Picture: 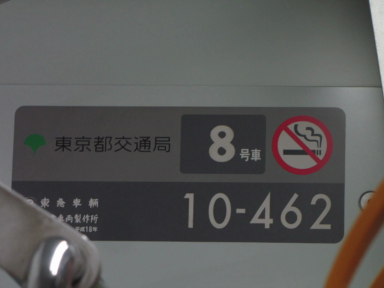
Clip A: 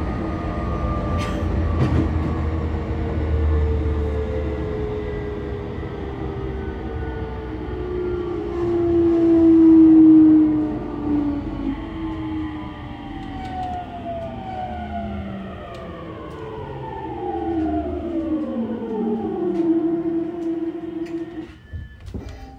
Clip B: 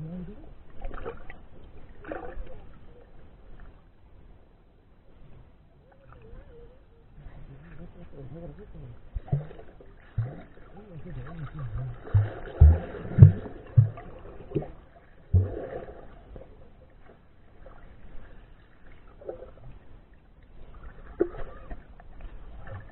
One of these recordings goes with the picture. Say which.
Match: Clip A